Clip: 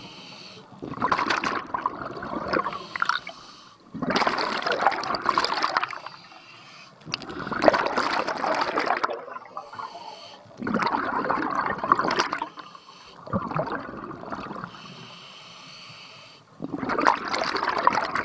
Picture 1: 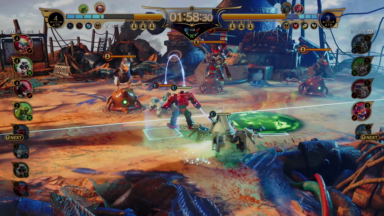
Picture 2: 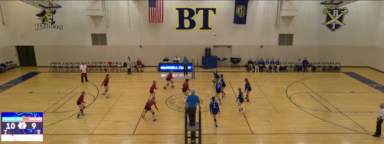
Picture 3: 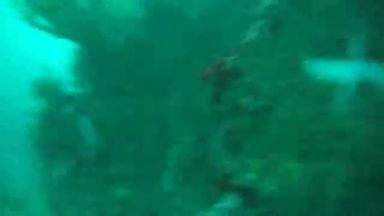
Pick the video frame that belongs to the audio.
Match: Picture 3